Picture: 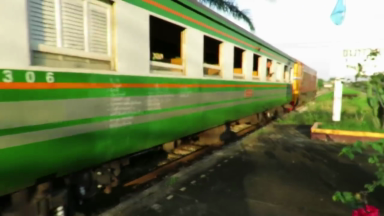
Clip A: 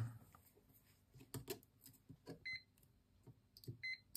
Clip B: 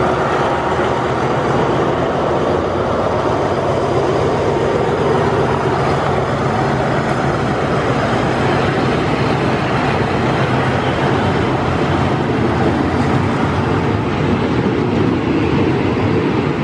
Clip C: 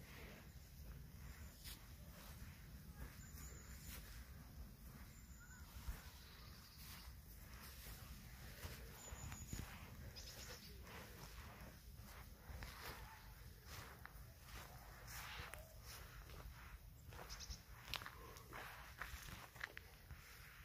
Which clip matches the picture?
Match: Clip B